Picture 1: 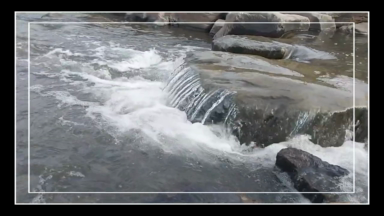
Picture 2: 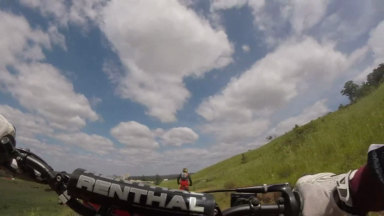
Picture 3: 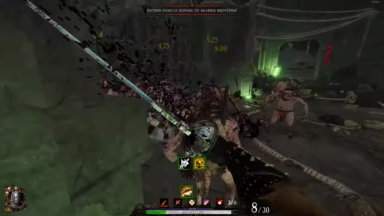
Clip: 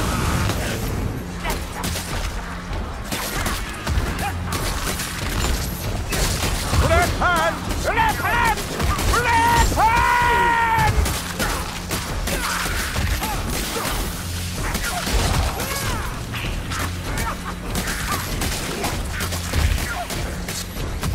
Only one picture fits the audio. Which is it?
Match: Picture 3